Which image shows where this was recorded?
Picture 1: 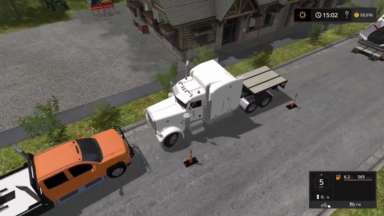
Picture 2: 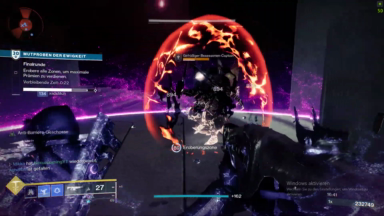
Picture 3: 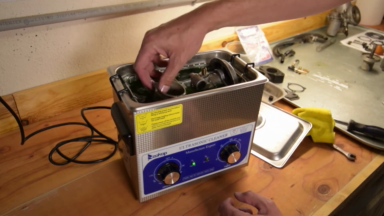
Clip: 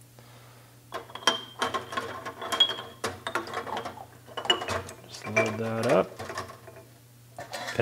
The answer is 3